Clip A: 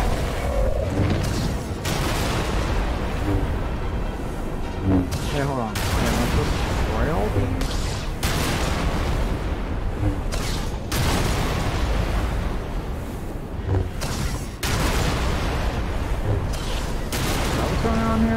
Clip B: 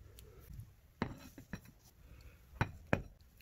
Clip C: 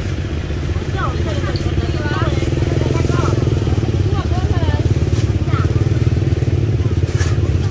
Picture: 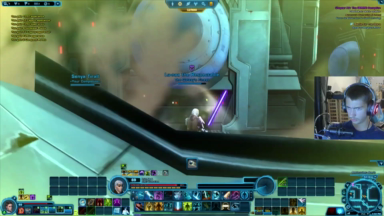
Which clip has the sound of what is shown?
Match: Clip A